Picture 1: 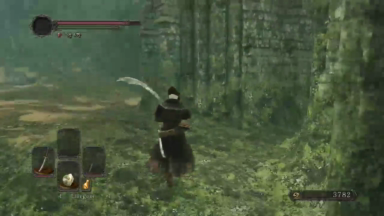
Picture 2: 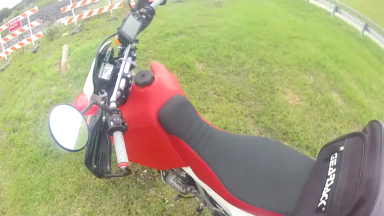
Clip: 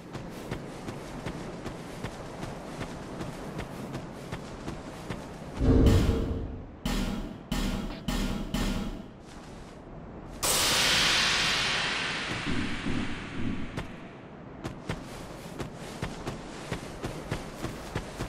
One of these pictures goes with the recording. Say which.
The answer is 1